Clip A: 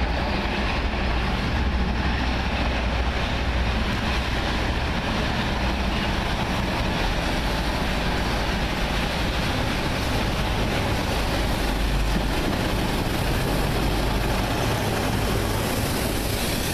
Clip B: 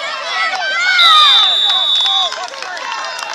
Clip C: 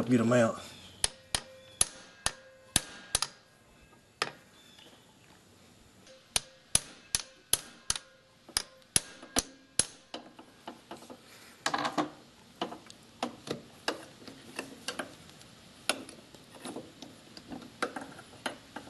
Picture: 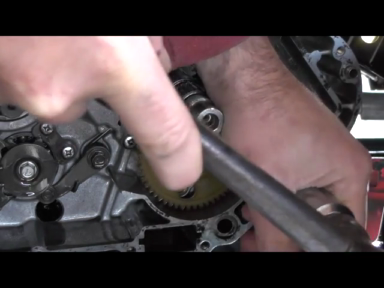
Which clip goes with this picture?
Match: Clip C